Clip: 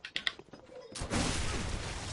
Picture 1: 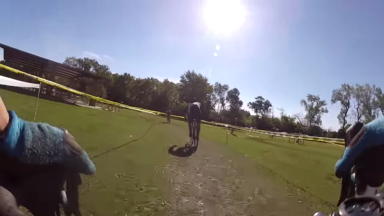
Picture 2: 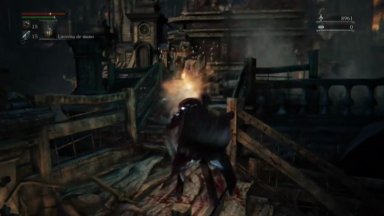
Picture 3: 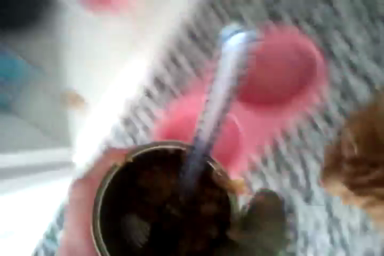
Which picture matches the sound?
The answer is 2